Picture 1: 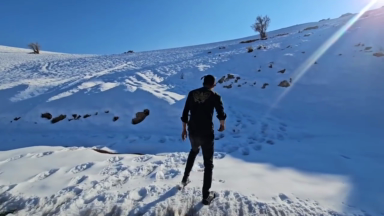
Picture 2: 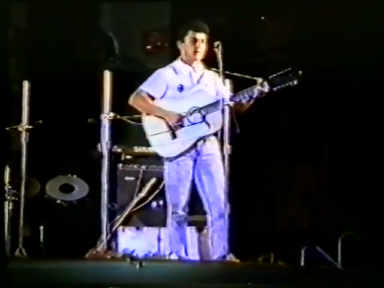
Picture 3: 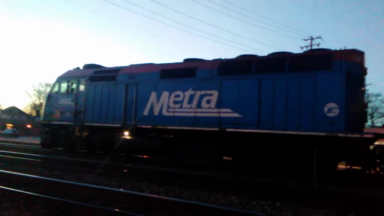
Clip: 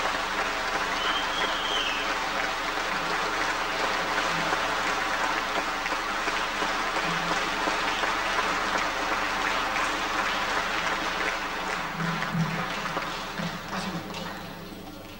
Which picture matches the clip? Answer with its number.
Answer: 2